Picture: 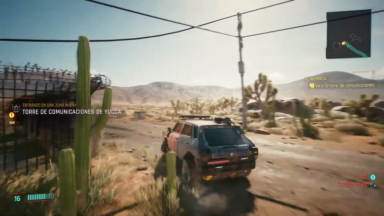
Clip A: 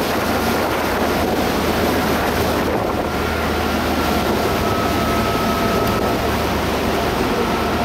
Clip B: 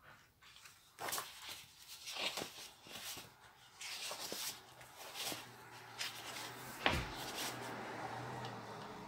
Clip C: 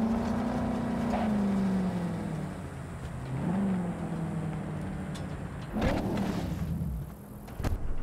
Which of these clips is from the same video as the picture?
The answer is C